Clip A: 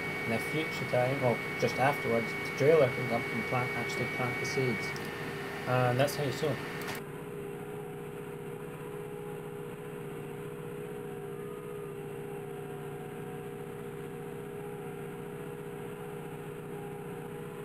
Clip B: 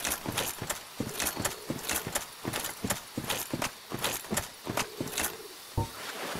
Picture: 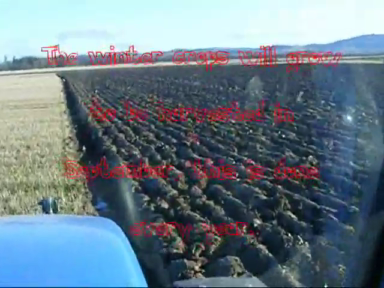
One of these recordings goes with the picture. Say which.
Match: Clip A